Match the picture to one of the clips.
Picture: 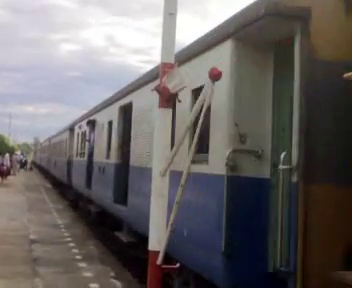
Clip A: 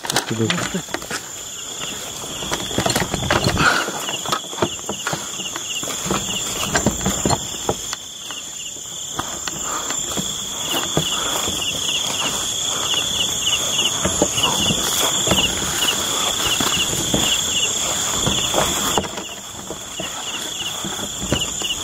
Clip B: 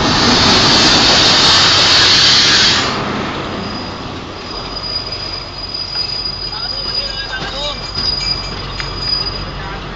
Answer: B